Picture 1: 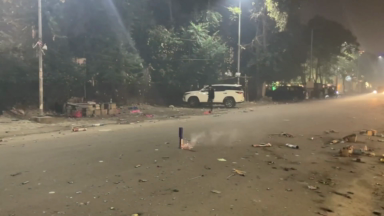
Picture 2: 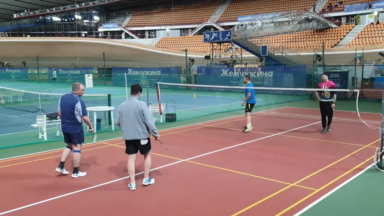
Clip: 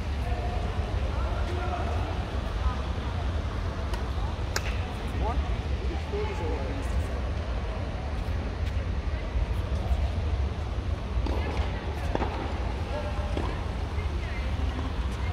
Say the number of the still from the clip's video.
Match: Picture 2